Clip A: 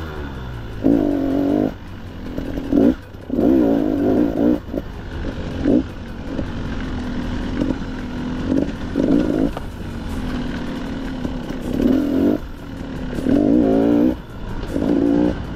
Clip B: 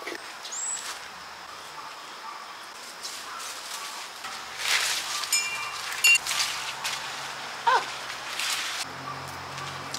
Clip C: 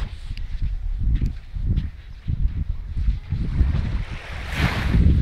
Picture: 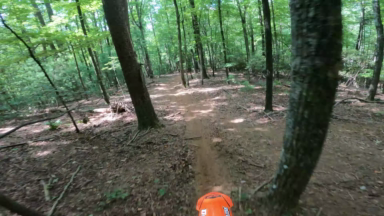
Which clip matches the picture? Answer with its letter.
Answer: A